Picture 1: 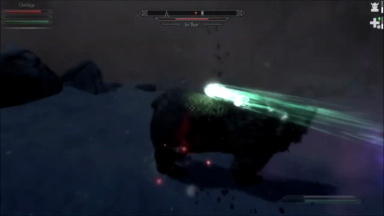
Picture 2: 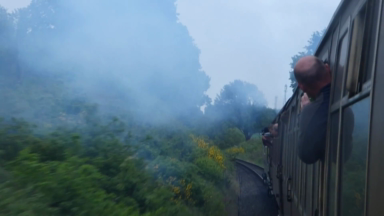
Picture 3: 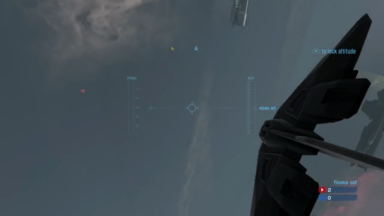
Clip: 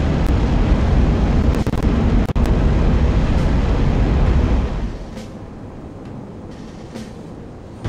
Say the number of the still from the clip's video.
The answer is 3